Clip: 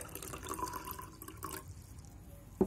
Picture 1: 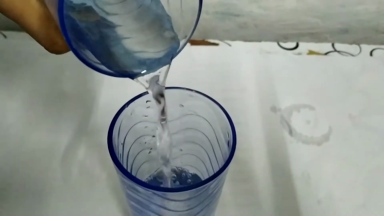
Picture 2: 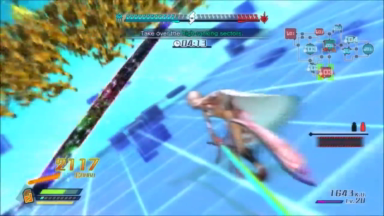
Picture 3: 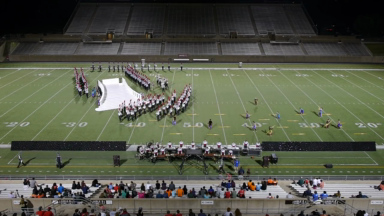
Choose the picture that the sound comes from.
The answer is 1